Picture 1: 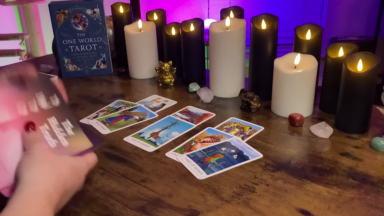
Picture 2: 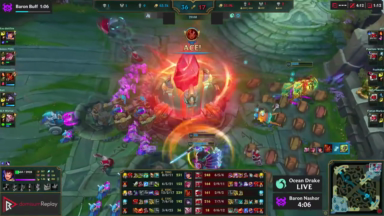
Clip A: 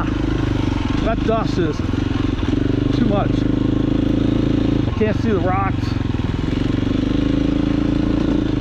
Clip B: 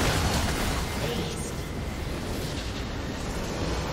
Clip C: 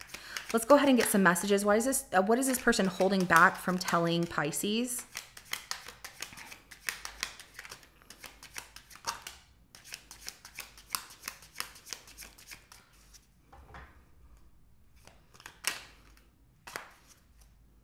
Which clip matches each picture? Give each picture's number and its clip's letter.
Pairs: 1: C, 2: B